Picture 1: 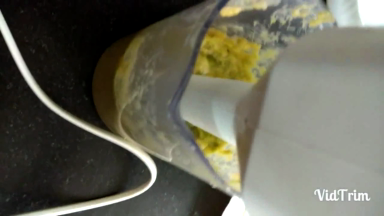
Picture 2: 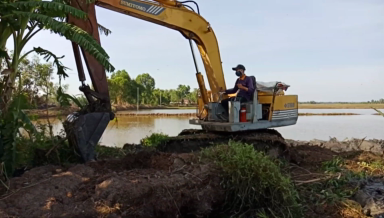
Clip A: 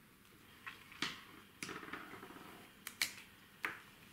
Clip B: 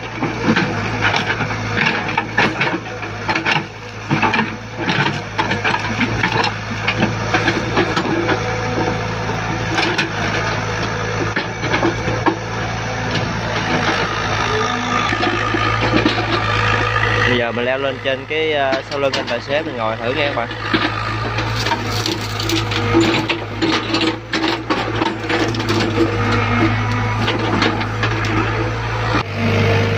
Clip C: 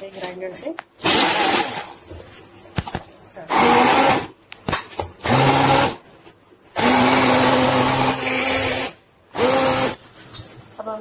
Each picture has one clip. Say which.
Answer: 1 C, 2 B